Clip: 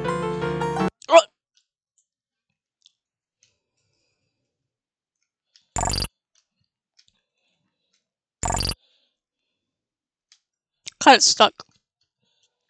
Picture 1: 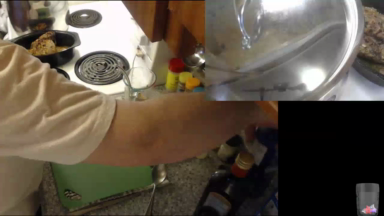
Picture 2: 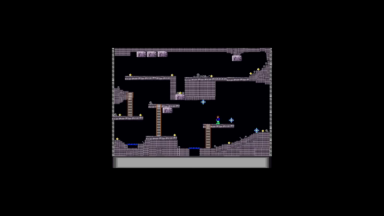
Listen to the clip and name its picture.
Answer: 2